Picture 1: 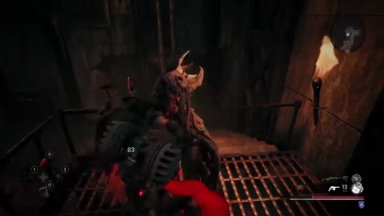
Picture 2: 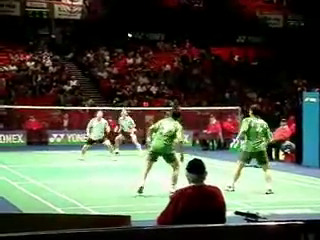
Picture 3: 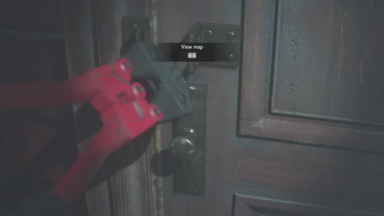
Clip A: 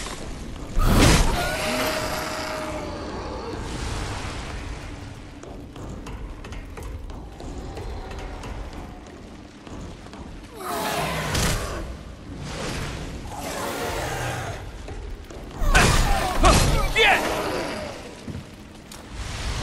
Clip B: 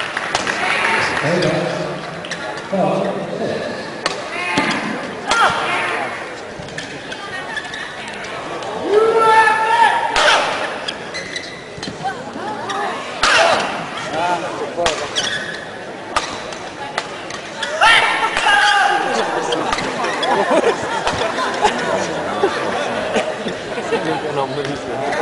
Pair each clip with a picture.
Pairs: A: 1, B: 2